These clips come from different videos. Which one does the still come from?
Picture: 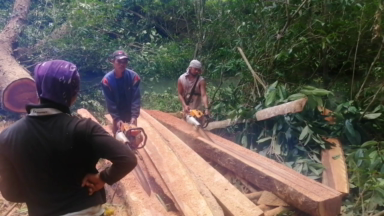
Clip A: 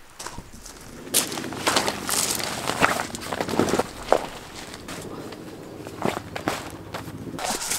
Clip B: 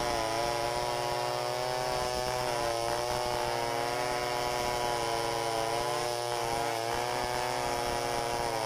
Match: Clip B